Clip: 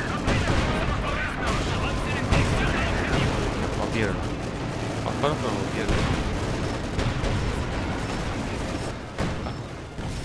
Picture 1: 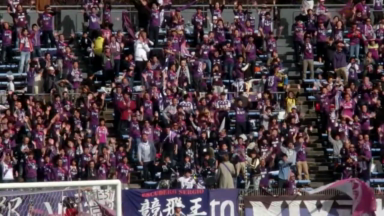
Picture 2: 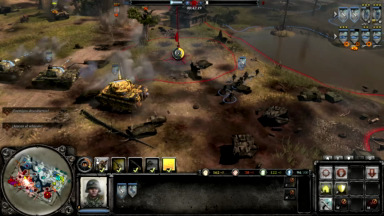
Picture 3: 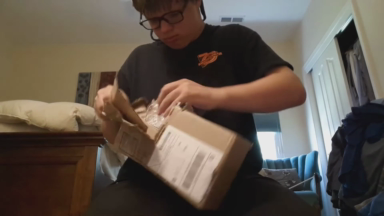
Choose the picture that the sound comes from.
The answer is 2